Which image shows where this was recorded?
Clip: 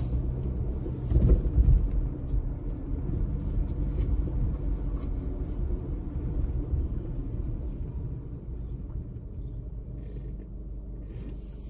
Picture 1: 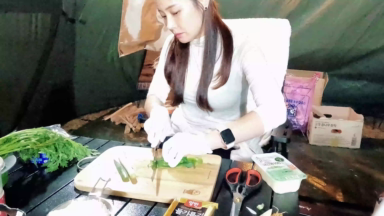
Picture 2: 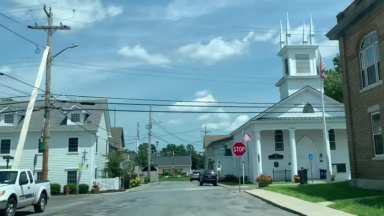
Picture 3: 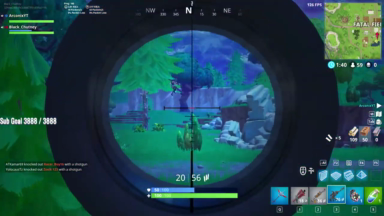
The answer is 2